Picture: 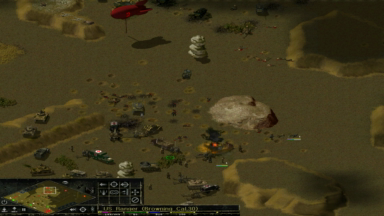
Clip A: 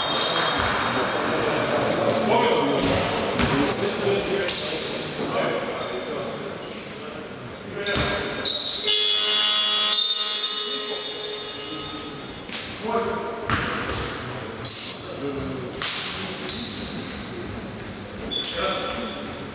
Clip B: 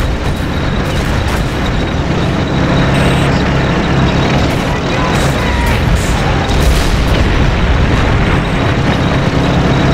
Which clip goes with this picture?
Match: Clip B